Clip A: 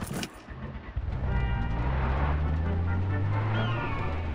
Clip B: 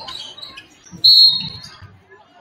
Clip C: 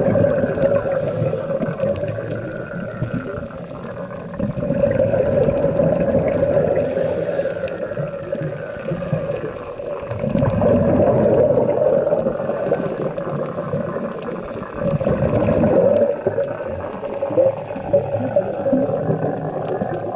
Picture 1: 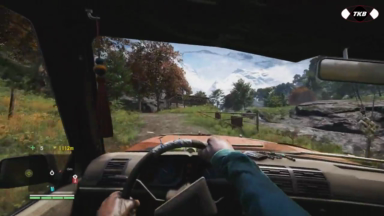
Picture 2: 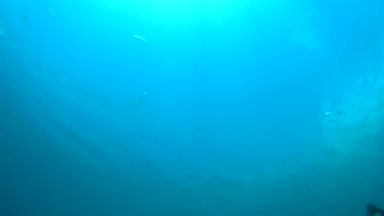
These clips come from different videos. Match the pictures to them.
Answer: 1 A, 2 C